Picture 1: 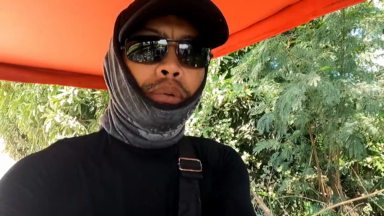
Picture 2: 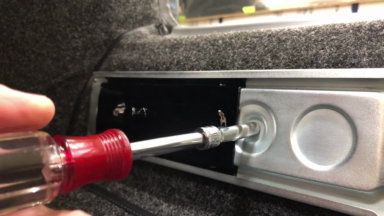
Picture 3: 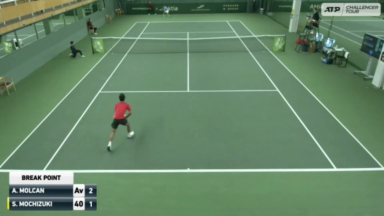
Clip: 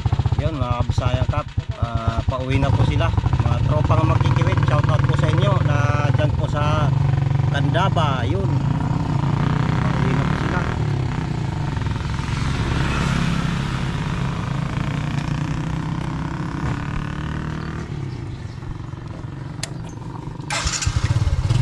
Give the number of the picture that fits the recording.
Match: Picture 1